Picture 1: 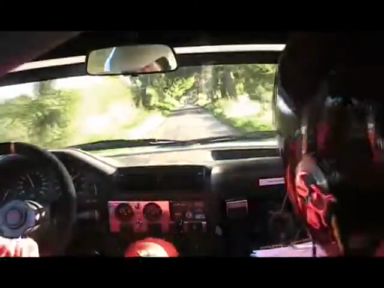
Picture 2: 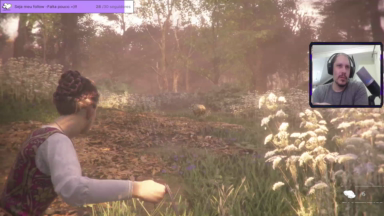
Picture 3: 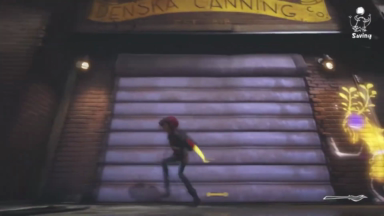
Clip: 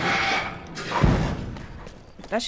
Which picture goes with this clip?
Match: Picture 3